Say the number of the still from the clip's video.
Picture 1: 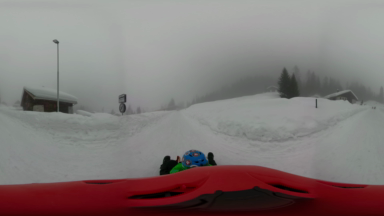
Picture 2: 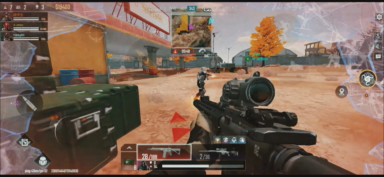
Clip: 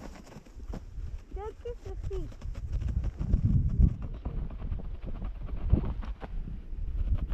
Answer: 1